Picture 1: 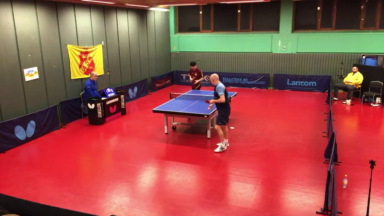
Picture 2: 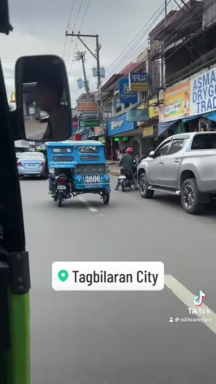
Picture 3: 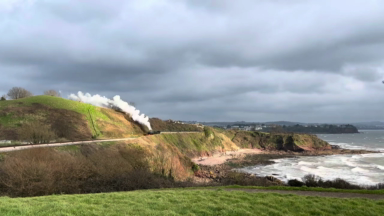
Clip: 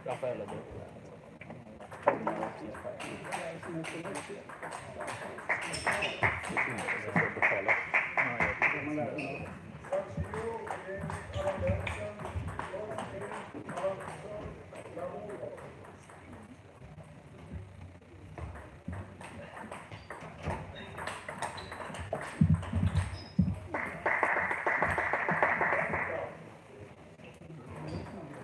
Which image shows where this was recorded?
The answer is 1